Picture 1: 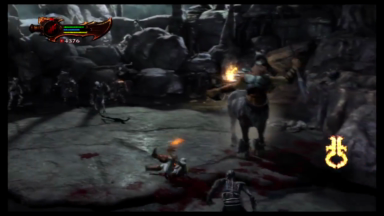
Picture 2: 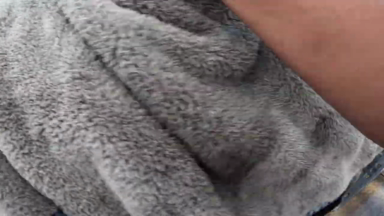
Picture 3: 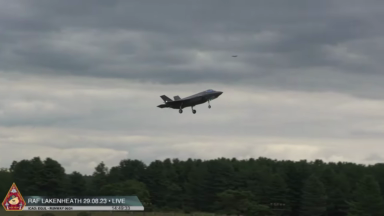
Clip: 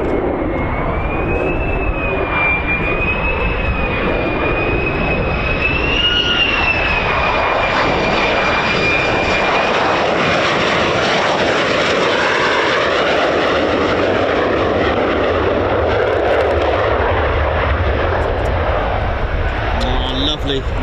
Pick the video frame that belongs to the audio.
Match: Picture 3